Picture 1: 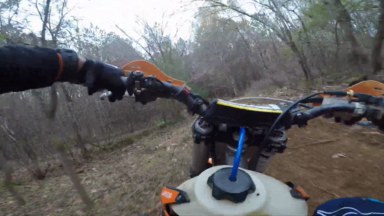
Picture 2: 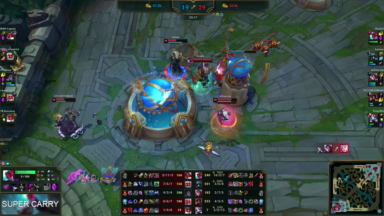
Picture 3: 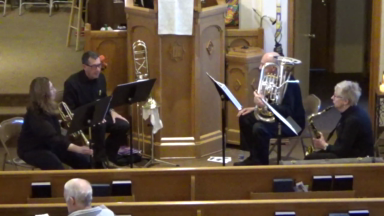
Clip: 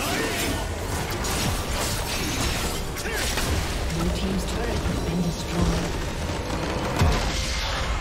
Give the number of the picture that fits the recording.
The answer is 2